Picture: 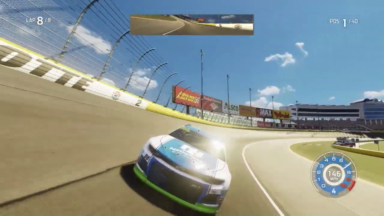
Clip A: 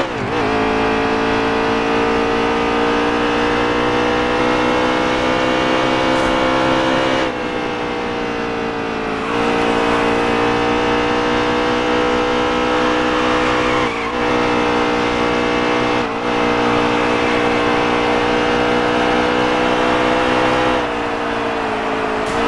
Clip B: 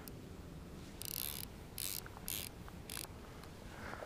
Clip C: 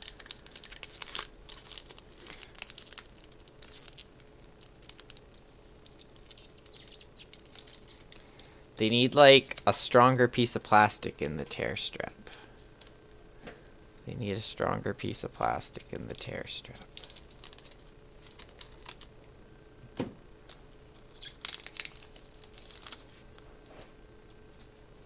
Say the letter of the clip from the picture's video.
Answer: A